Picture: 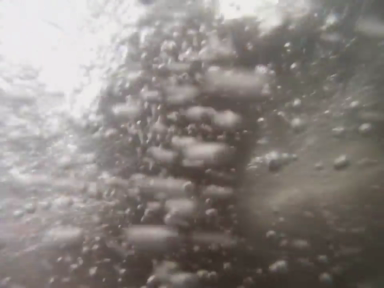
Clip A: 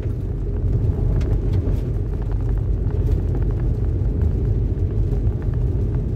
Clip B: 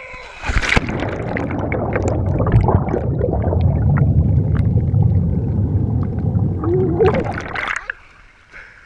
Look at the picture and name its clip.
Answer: B